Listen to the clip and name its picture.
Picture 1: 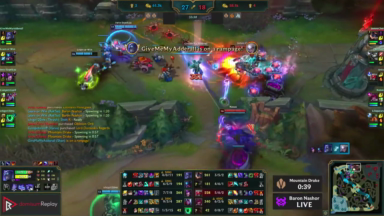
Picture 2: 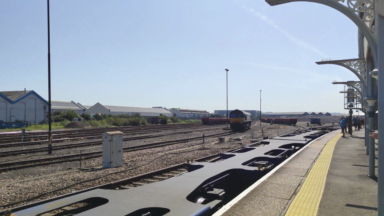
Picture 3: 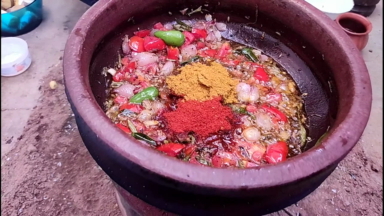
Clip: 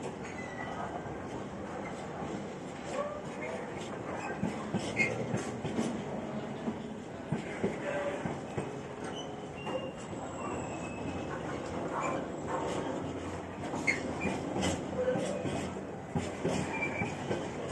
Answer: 2